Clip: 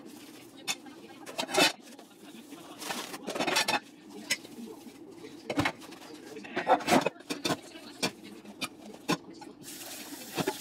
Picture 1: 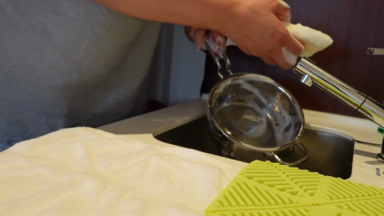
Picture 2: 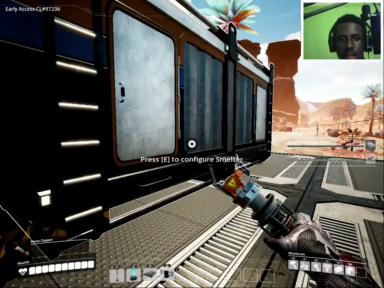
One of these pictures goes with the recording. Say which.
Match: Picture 1